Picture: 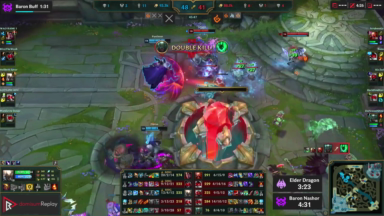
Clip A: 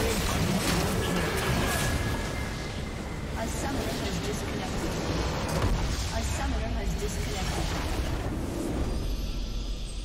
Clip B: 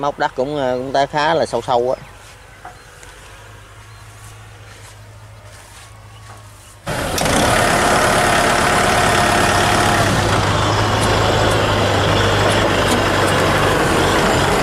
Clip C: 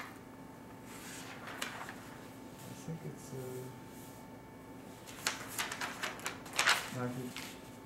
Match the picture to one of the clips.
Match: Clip A